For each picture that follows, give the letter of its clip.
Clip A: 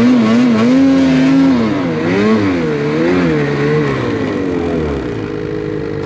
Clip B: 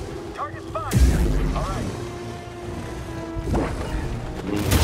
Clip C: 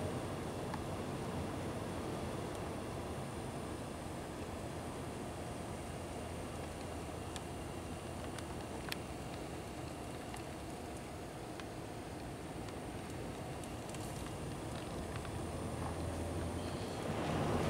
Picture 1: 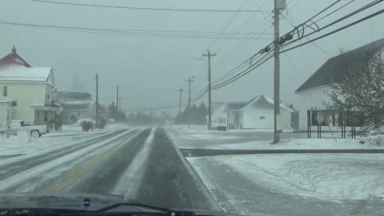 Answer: C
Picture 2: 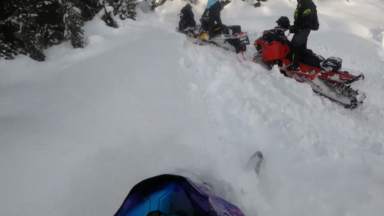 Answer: A